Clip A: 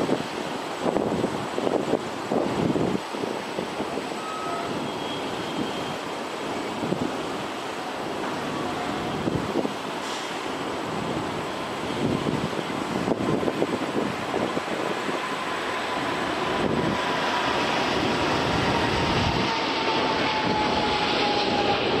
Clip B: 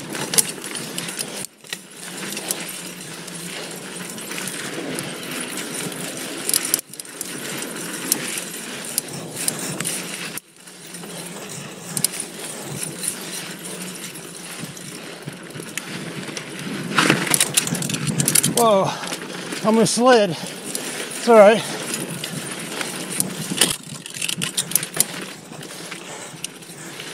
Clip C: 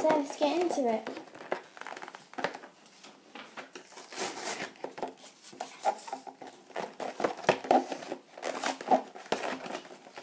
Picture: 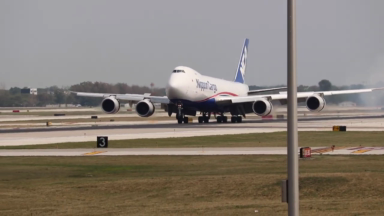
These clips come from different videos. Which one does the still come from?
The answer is A